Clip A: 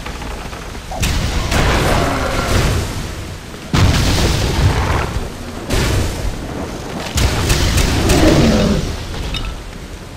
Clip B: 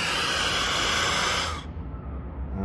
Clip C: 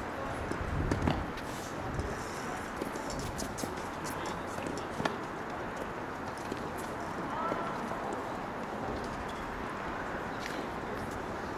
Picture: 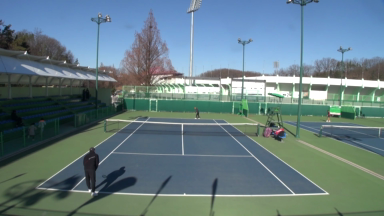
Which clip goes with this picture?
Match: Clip C